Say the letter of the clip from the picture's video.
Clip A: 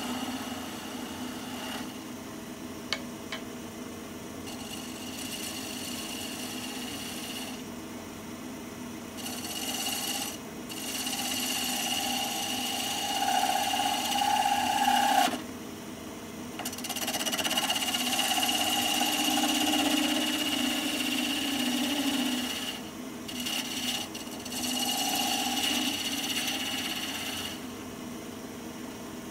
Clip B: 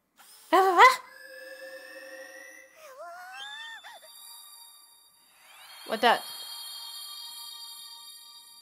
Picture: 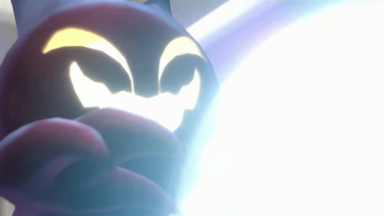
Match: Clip B